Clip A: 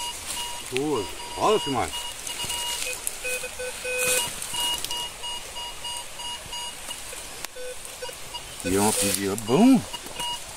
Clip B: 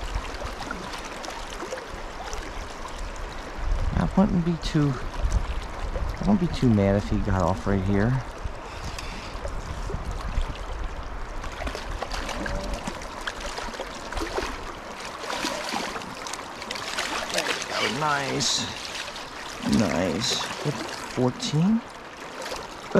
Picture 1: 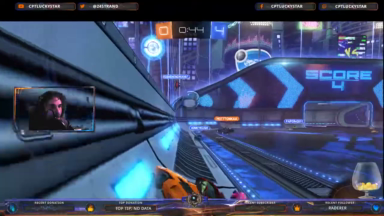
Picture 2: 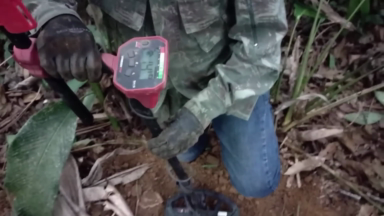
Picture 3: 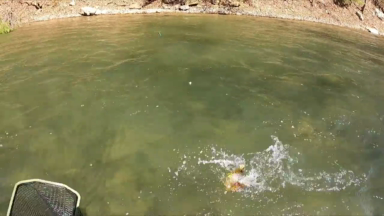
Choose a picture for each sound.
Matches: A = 2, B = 3